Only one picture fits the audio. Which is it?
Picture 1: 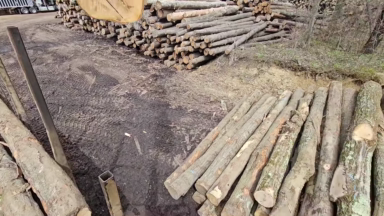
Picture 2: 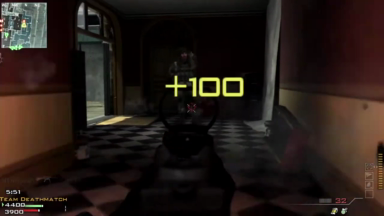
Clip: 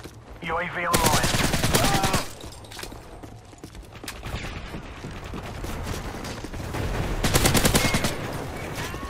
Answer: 2